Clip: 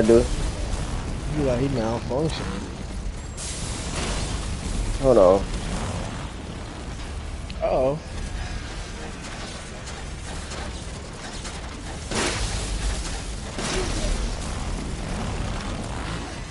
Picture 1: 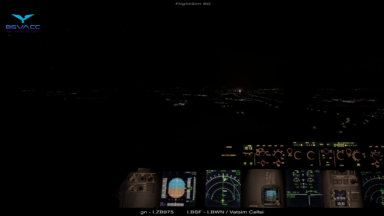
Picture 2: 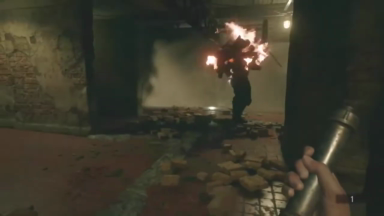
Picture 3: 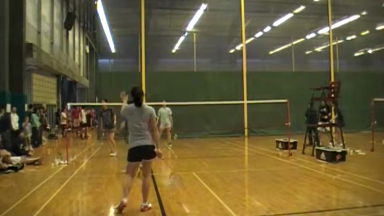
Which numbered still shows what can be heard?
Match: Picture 2